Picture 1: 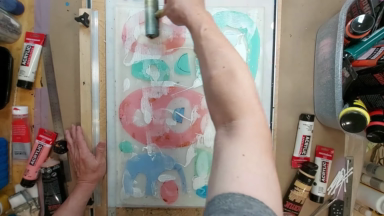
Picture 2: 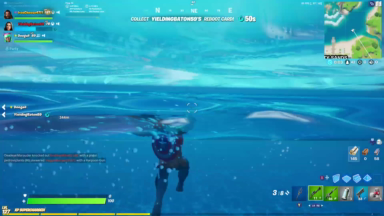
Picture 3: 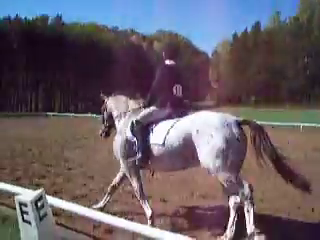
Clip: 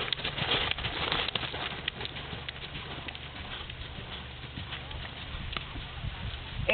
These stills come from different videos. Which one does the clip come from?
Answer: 3